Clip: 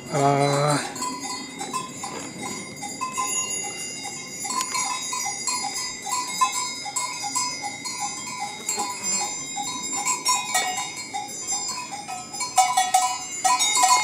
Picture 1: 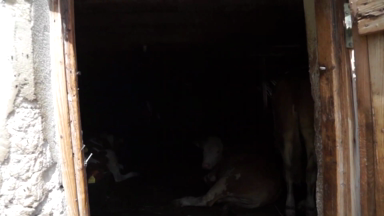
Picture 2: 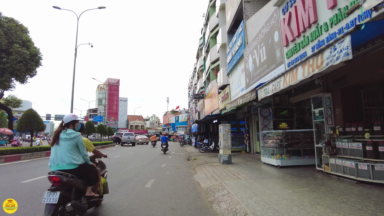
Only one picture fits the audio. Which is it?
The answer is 1